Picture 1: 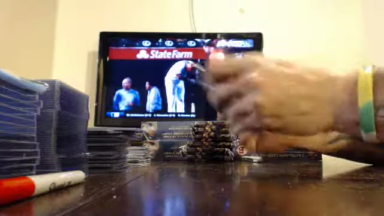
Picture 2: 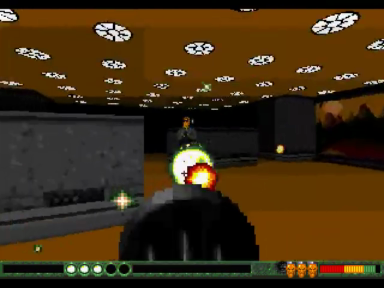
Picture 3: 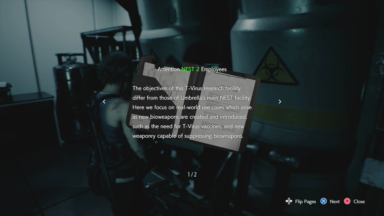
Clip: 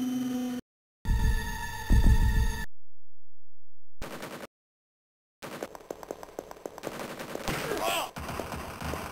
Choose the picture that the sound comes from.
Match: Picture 2